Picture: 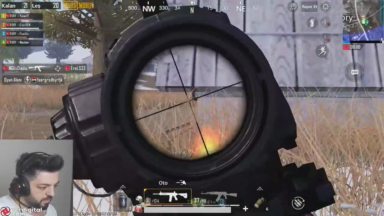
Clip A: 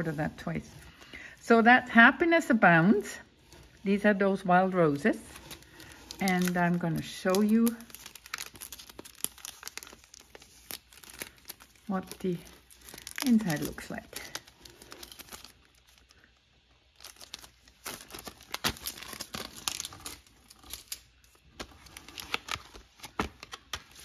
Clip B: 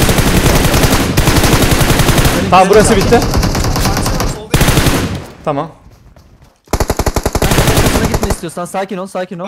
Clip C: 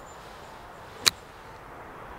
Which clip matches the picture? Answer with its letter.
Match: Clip B